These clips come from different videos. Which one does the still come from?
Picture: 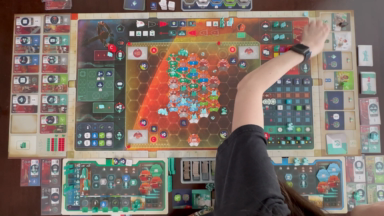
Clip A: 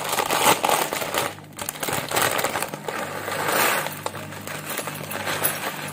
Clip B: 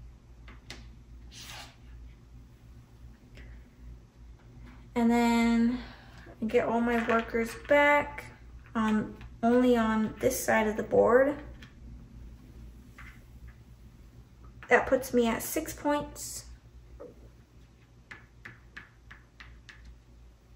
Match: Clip B